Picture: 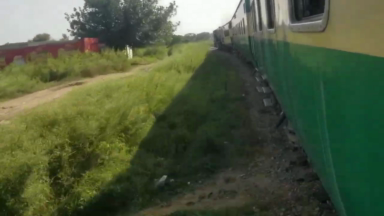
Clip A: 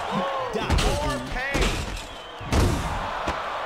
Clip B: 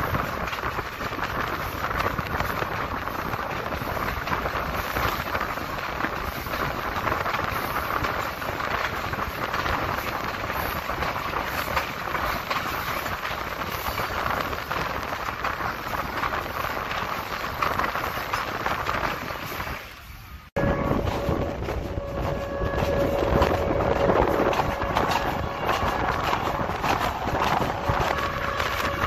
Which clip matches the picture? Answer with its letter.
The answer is B